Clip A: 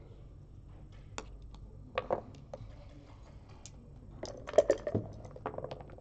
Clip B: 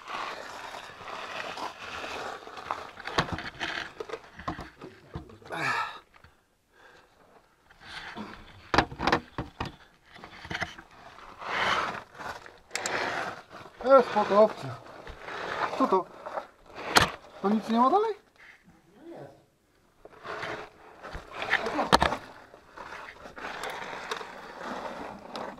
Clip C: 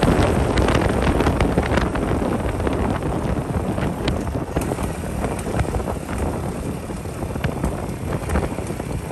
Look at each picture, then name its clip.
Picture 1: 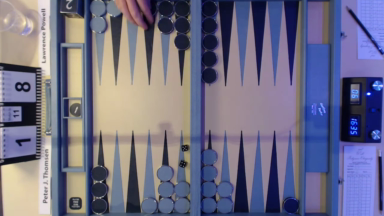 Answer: A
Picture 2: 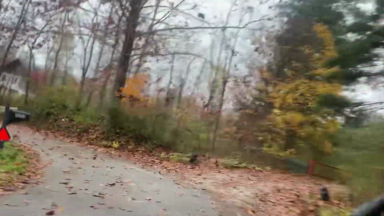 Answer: C